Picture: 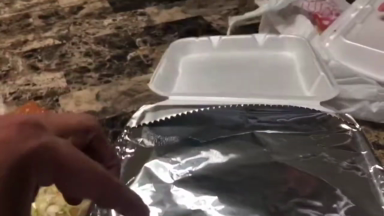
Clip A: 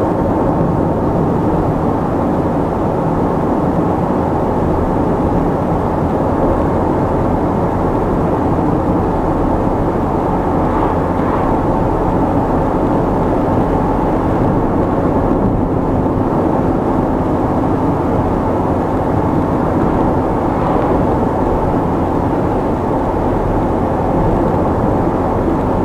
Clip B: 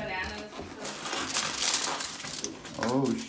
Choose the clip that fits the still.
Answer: B